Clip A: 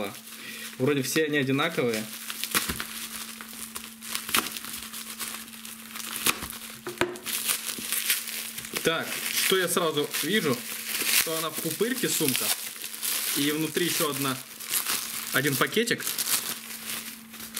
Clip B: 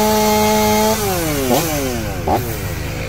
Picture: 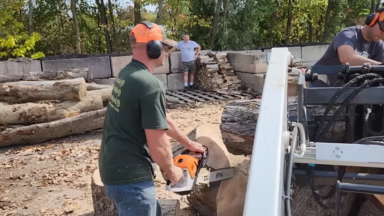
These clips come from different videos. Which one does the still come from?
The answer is B